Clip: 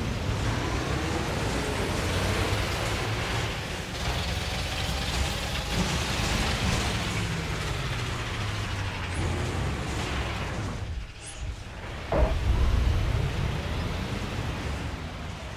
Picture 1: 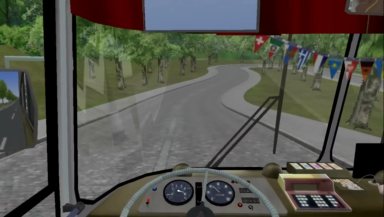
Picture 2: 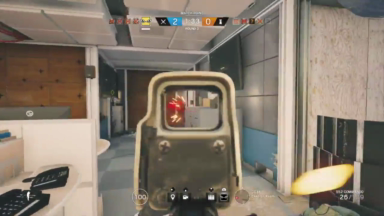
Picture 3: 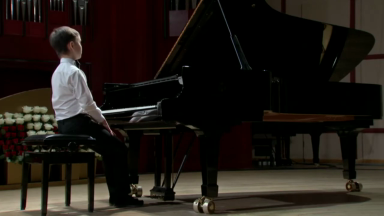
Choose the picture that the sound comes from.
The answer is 1